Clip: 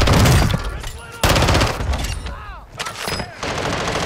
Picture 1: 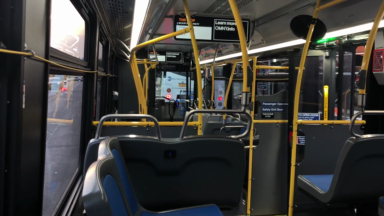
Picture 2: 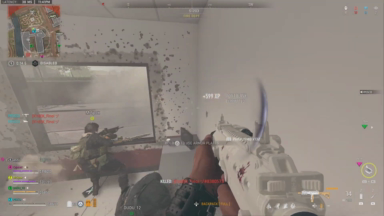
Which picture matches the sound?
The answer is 2